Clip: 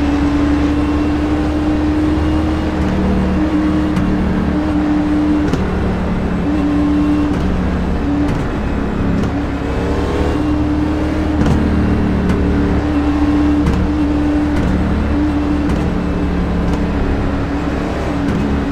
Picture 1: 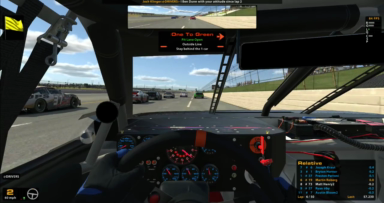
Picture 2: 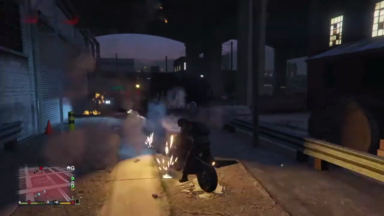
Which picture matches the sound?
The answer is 1